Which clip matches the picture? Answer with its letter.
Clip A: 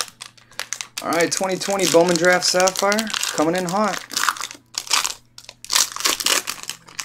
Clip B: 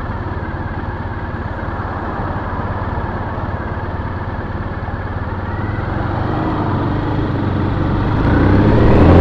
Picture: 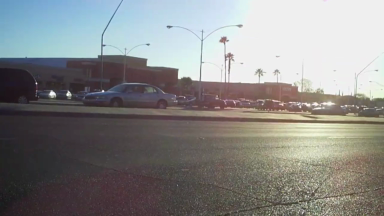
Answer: B